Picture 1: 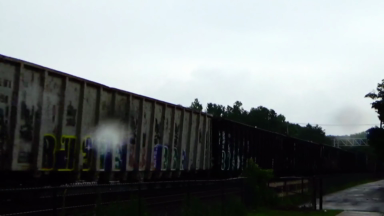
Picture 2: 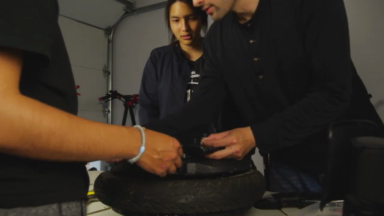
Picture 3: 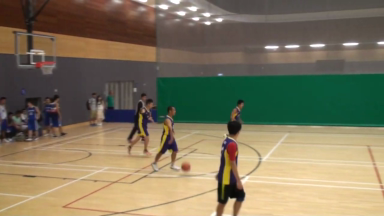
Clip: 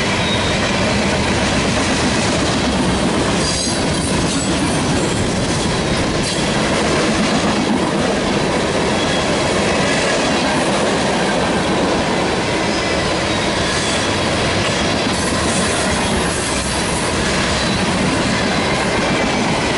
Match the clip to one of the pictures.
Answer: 1